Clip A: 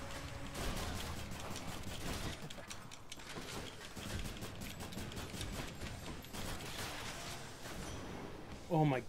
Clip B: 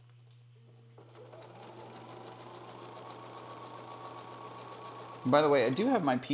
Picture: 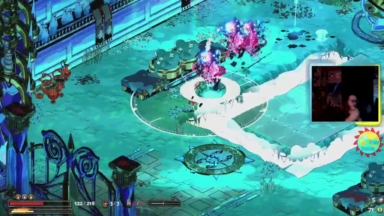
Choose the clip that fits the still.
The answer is A